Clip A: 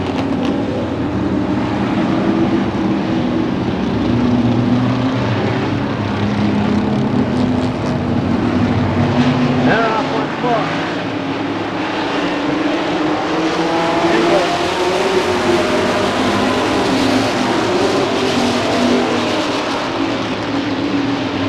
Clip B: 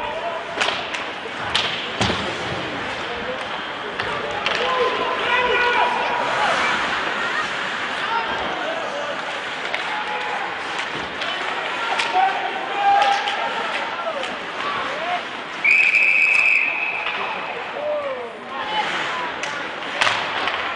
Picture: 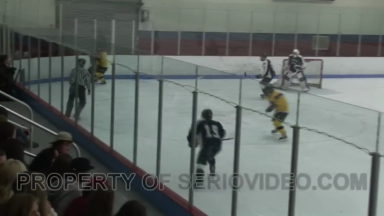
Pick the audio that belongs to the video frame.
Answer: B